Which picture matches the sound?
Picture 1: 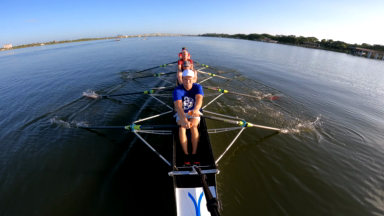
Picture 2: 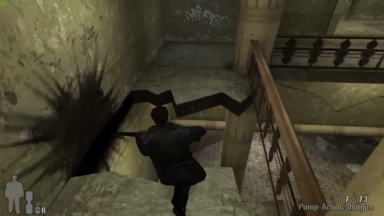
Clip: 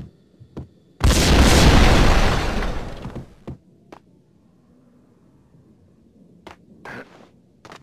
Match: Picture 2